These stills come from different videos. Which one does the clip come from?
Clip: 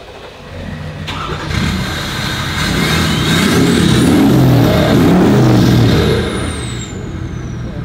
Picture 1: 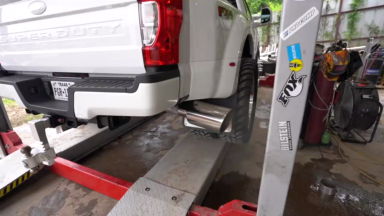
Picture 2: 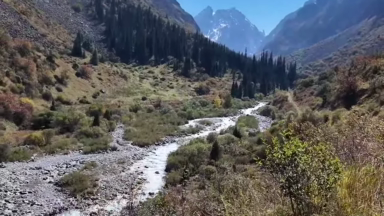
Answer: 1